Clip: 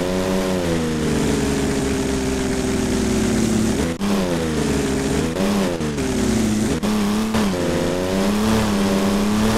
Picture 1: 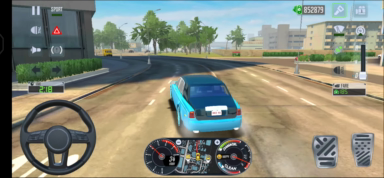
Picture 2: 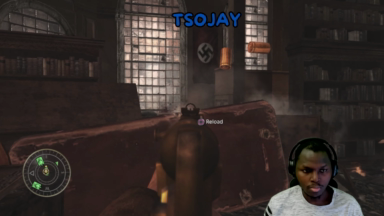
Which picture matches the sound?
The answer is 1